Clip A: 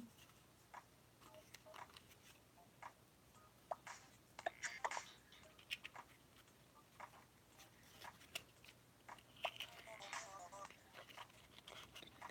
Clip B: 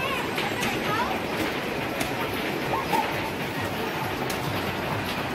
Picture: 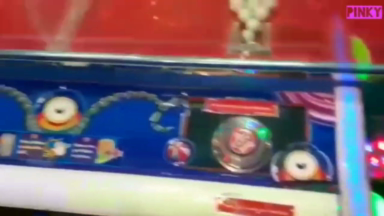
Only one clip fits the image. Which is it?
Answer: B